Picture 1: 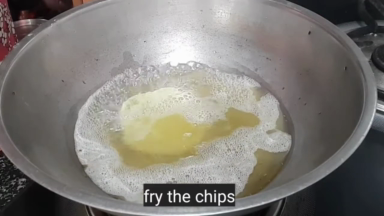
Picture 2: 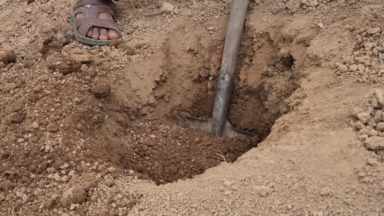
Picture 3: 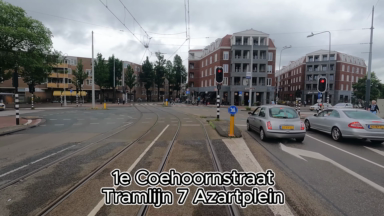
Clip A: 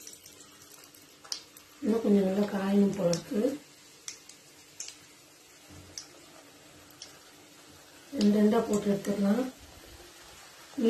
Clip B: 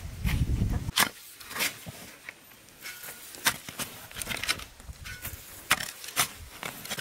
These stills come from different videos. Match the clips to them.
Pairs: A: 1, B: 2